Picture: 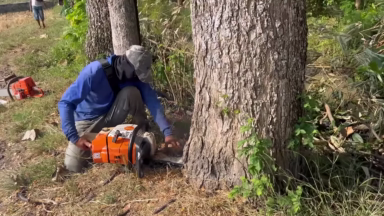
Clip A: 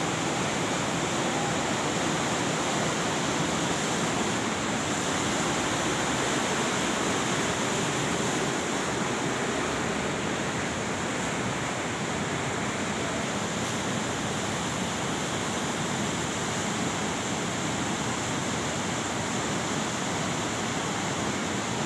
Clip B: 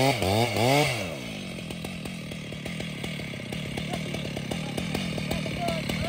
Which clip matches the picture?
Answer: B